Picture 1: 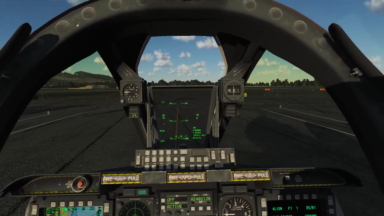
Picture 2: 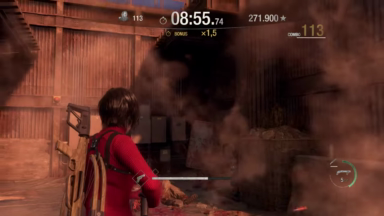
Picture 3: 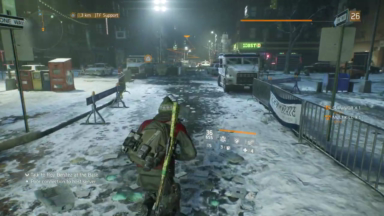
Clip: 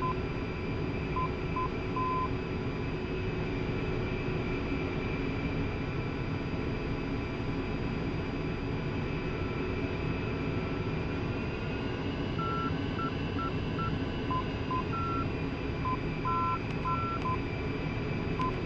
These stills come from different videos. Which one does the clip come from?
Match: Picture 1